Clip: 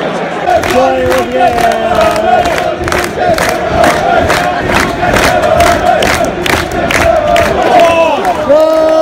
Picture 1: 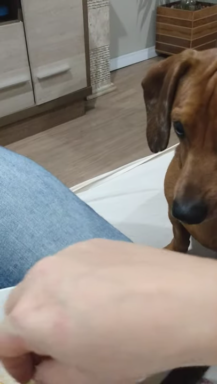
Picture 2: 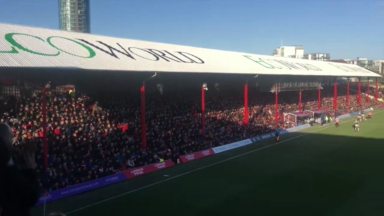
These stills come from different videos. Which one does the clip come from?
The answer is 2